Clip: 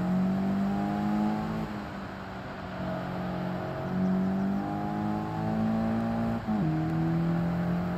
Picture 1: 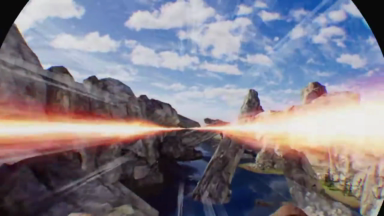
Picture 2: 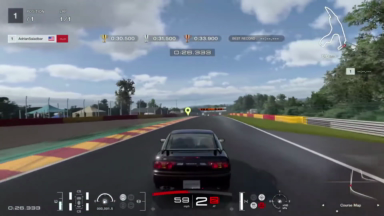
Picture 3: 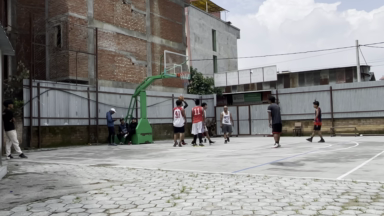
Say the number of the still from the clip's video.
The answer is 2